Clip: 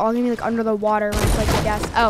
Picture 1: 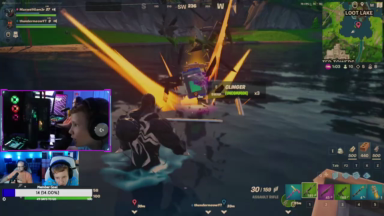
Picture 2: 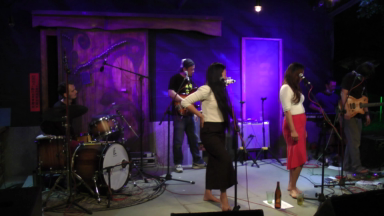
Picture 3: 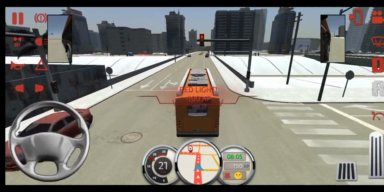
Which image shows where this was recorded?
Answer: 1